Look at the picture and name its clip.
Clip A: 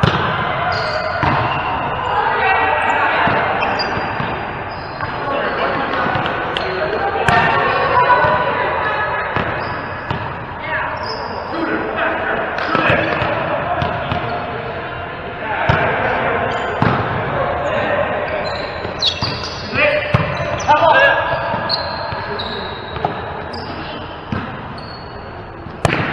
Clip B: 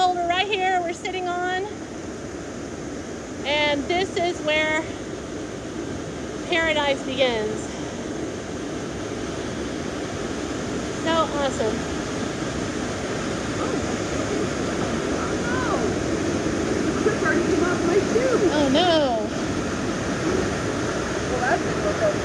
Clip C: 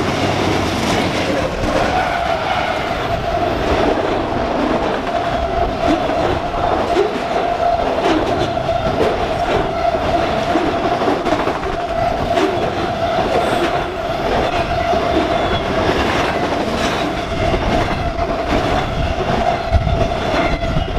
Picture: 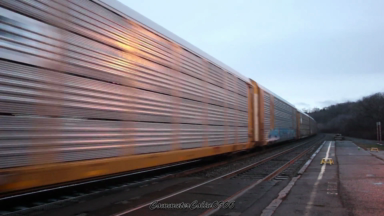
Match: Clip C